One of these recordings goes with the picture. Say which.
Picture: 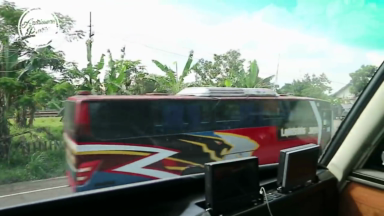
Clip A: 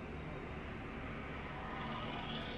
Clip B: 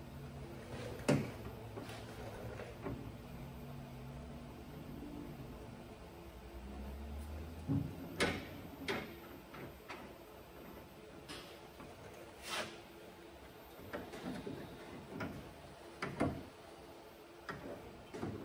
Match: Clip A